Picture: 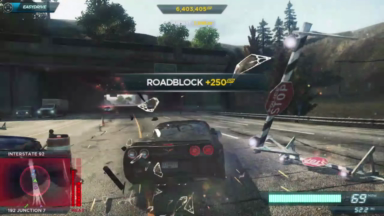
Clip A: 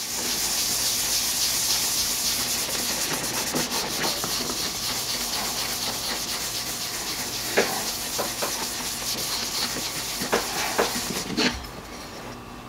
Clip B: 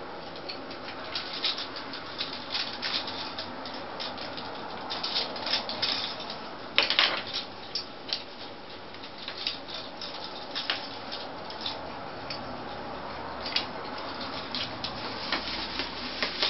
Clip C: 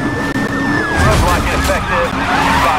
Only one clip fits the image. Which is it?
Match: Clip C